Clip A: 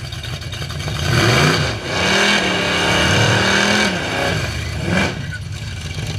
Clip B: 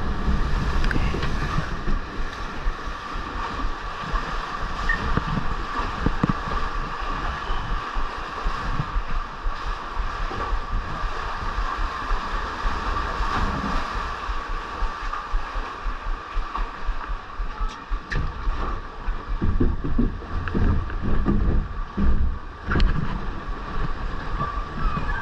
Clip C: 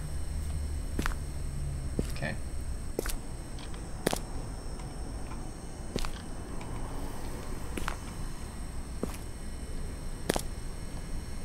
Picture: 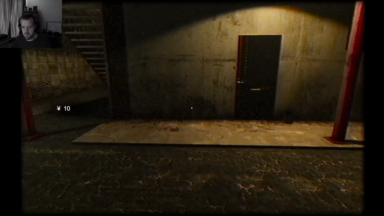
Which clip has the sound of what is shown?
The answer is C